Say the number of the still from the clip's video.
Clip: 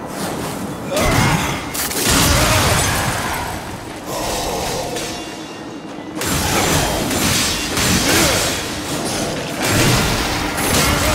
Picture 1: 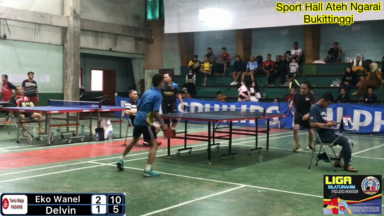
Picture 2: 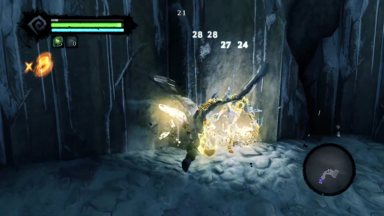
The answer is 2